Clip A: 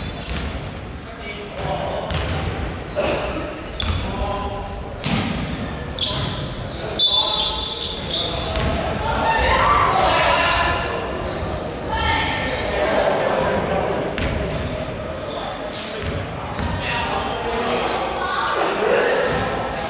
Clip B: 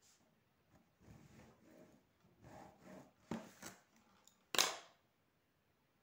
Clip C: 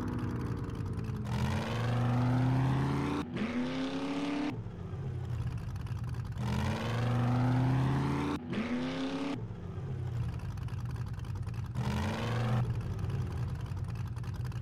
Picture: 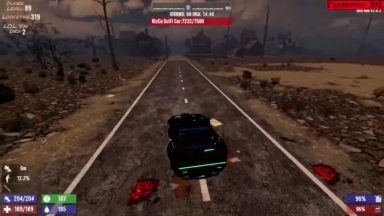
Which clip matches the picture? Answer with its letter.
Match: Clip C